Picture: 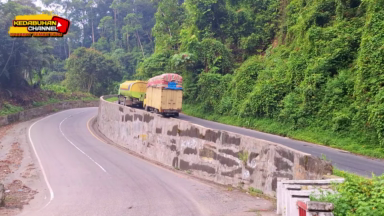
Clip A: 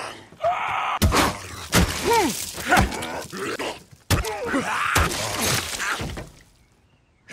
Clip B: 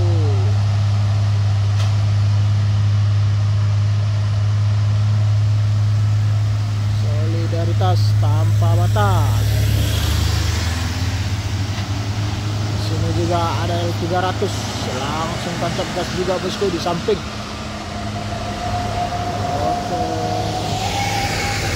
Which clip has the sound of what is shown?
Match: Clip B